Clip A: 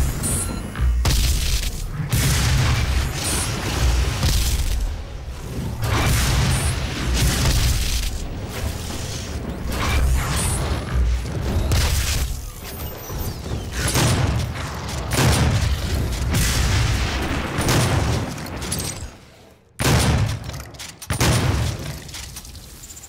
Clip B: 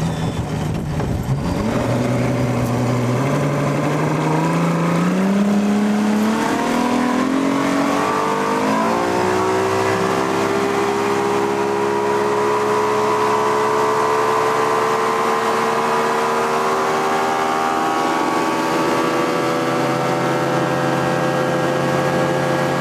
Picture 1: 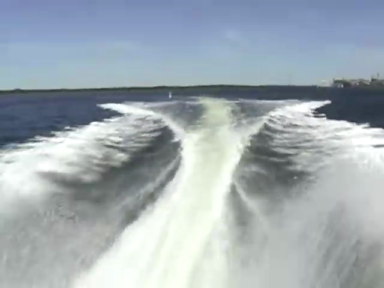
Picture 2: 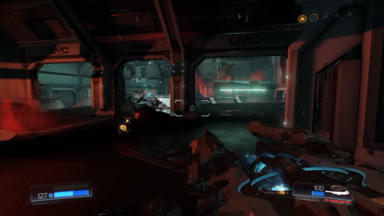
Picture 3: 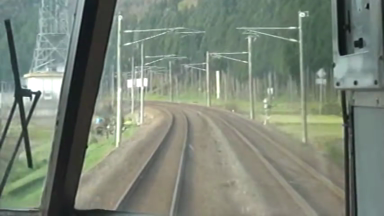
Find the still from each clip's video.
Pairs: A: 2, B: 1